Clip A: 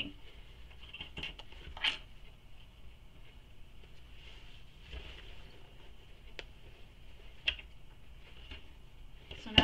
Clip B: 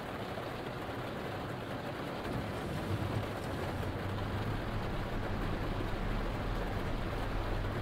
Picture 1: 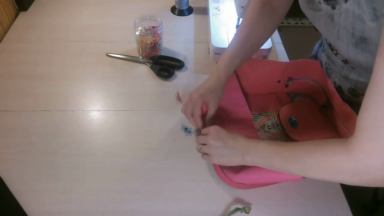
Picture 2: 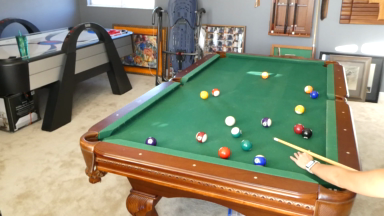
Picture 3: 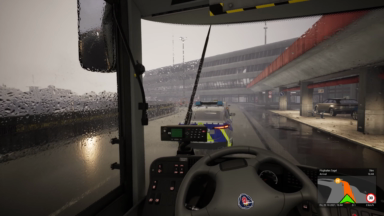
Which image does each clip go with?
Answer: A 1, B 3